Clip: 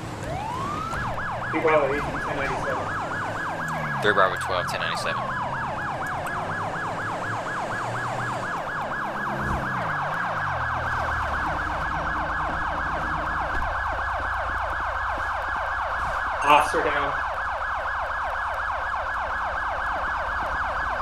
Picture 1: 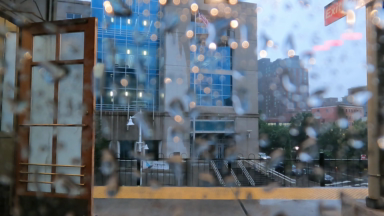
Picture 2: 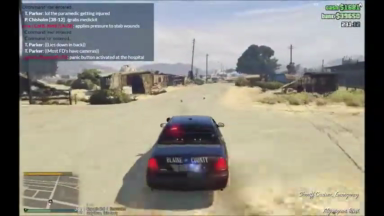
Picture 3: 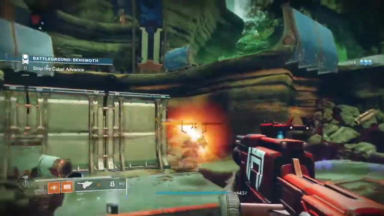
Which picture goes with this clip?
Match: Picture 2